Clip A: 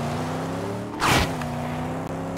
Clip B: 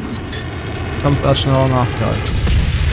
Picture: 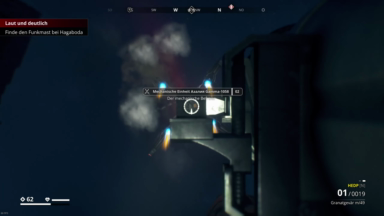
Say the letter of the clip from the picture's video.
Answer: B